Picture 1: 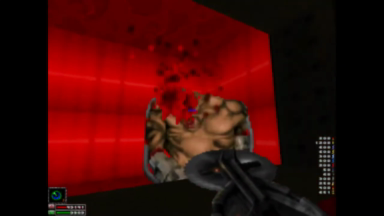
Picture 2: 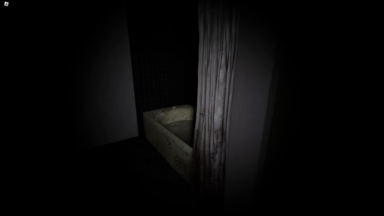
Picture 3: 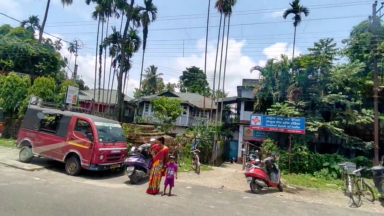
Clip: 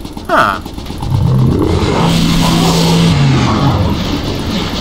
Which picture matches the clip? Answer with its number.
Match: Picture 1